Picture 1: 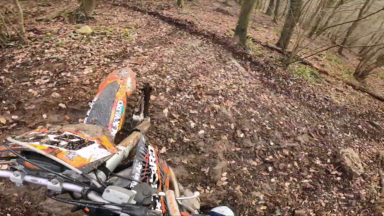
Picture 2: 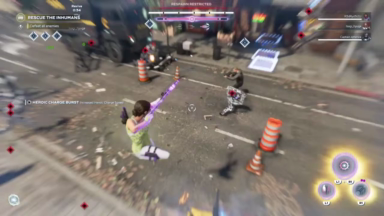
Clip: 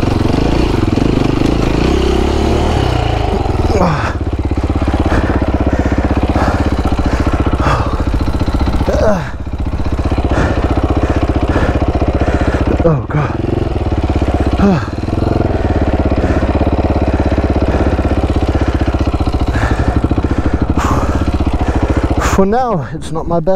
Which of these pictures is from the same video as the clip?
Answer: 1